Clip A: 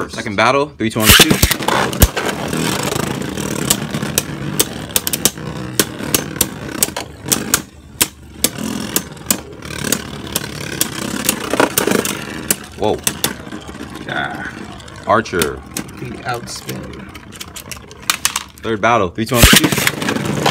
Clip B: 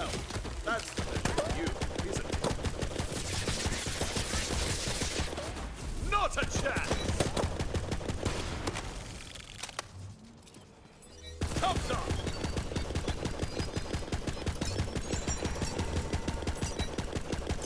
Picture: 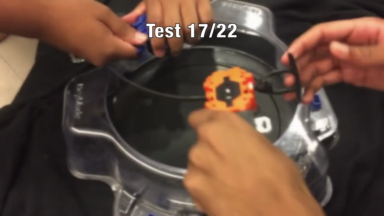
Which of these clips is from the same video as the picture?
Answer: A